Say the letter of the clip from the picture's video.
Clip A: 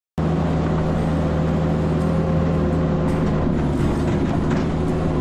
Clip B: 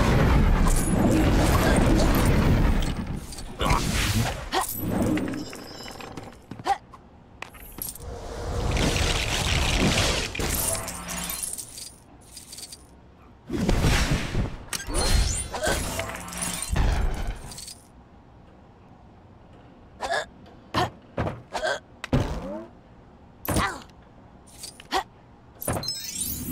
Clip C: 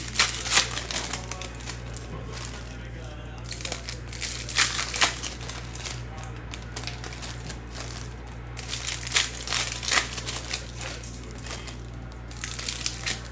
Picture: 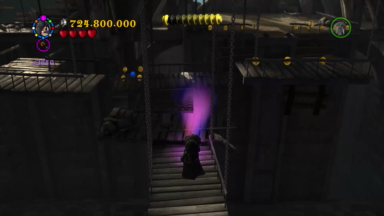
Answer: B